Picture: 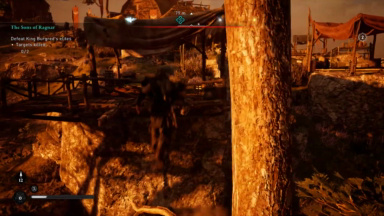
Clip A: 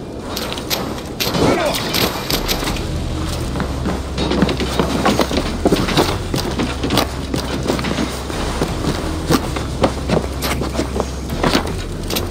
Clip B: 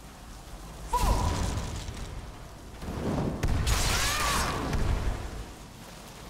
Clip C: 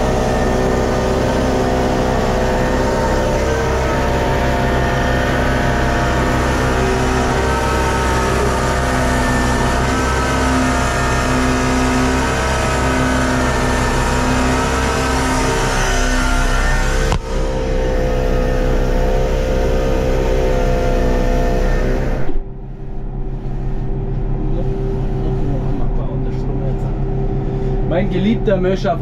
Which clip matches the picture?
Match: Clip A